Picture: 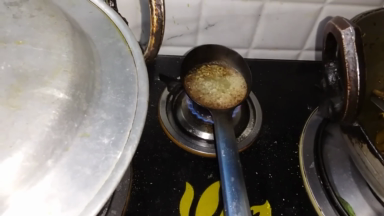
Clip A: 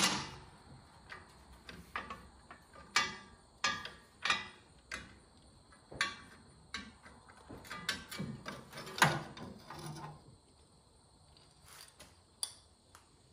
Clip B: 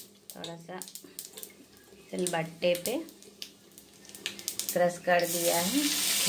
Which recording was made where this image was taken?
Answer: B